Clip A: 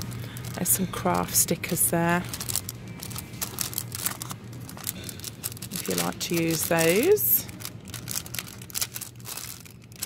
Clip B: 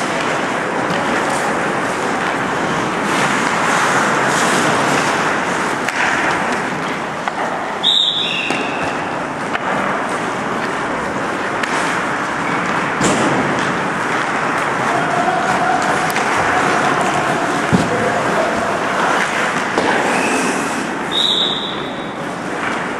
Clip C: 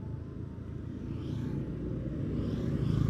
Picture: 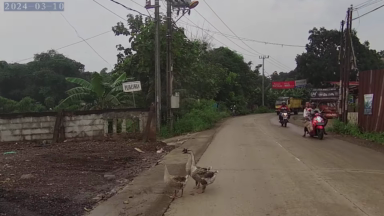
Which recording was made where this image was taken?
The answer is C